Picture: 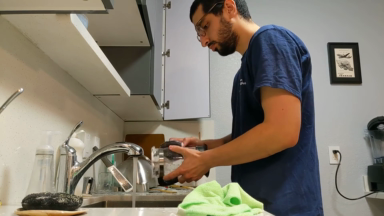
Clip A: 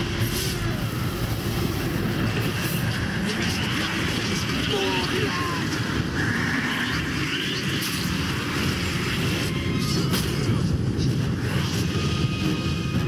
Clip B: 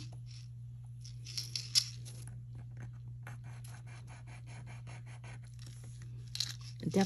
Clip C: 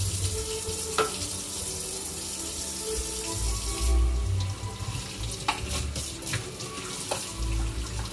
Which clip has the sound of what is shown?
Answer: C